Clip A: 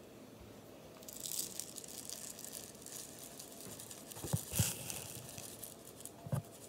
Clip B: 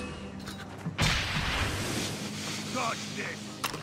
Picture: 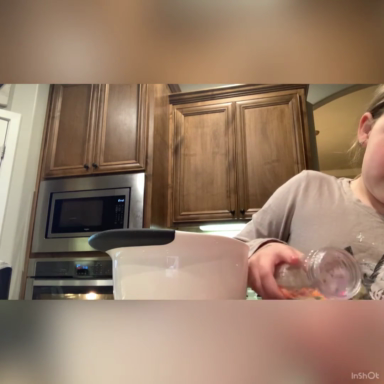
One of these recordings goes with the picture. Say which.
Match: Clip A